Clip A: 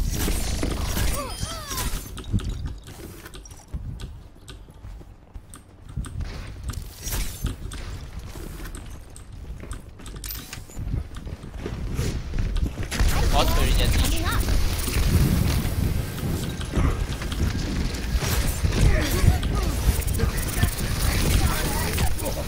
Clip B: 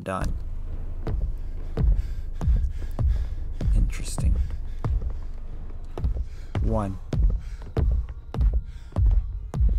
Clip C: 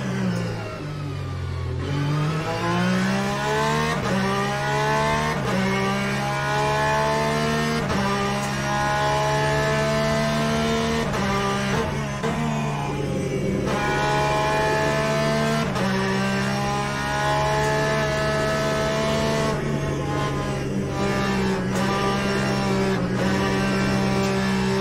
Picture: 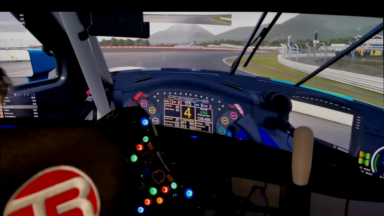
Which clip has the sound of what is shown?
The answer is C